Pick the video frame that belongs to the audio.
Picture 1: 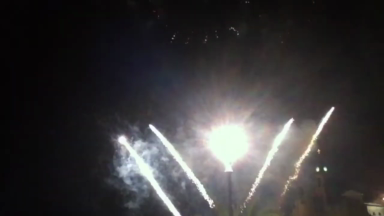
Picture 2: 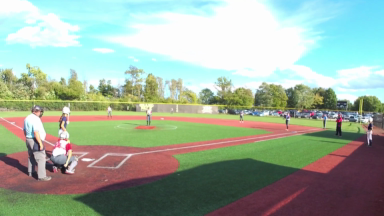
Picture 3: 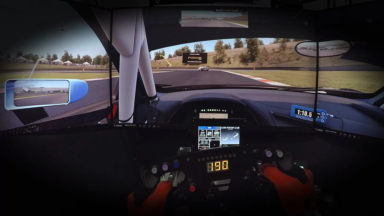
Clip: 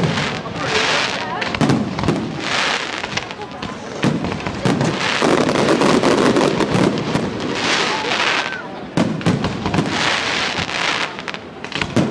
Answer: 1